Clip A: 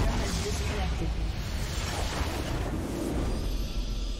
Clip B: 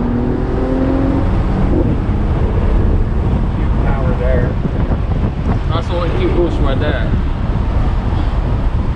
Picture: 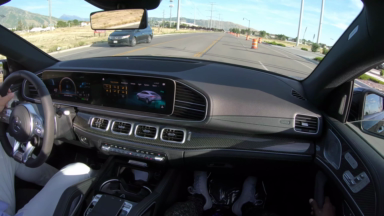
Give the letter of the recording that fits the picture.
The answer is B